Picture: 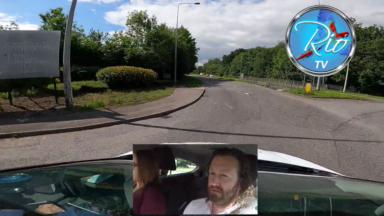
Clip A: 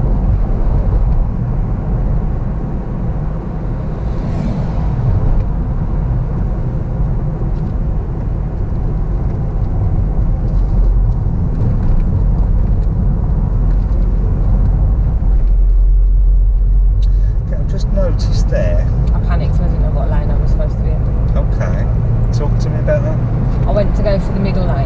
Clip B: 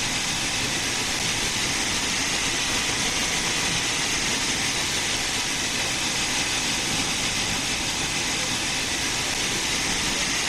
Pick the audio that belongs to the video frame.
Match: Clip A